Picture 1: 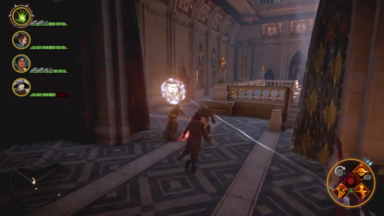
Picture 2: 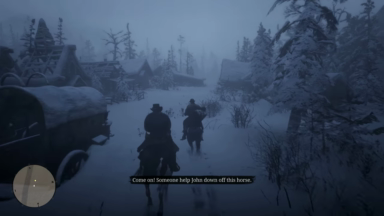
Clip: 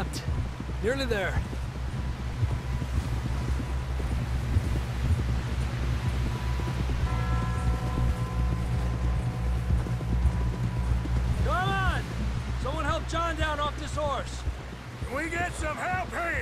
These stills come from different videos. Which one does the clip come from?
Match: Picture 2